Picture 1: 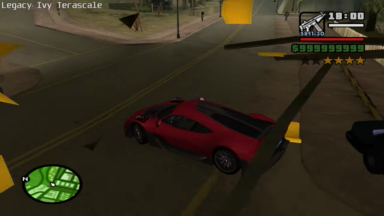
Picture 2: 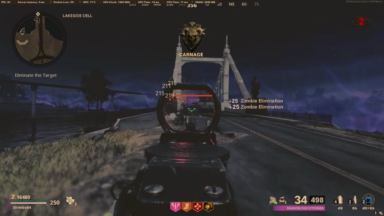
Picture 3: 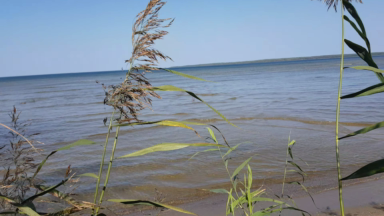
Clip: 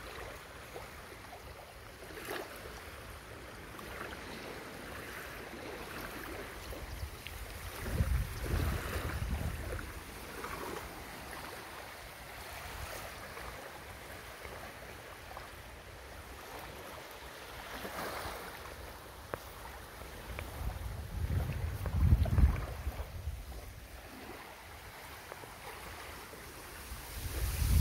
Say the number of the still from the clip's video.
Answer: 3